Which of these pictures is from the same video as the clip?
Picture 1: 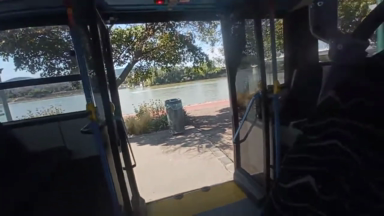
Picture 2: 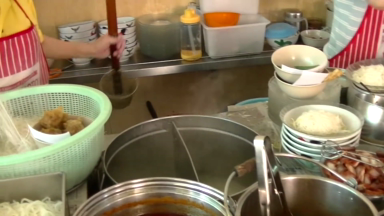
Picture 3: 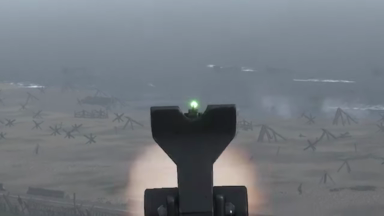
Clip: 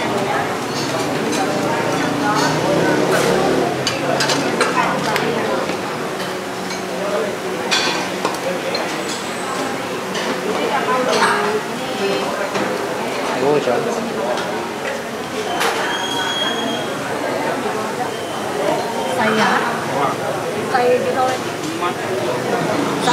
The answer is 2